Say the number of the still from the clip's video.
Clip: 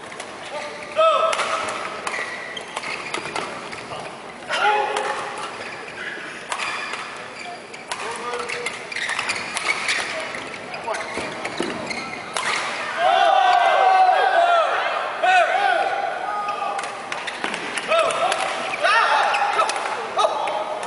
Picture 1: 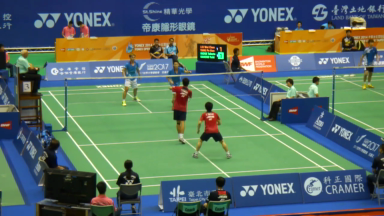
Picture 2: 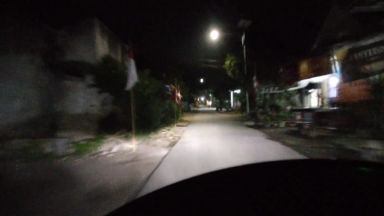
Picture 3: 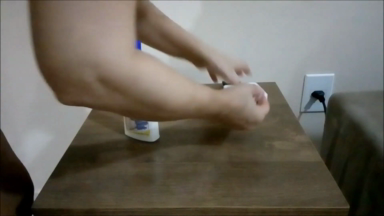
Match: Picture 1